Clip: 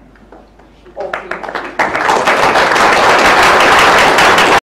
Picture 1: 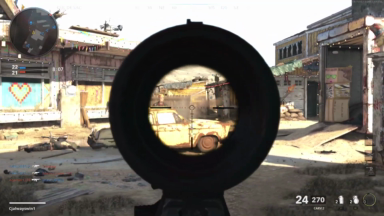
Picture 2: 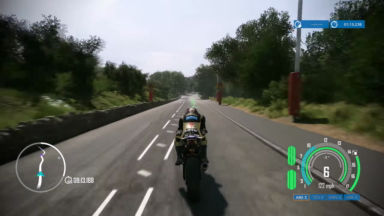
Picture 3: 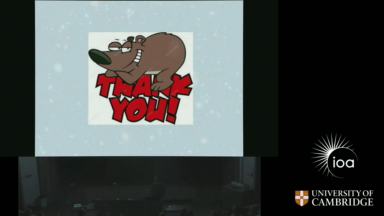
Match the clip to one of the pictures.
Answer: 3